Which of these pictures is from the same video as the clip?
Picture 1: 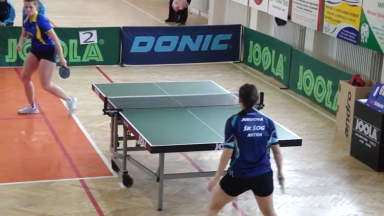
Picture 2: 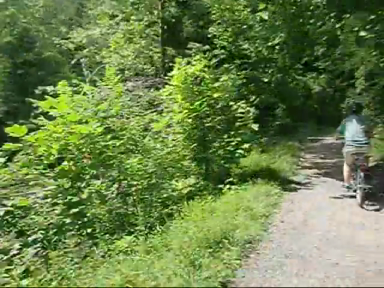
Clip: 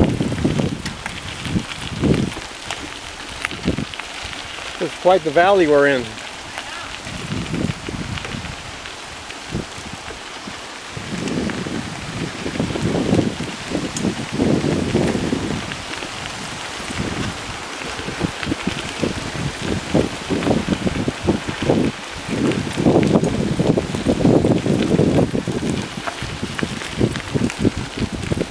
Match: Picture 2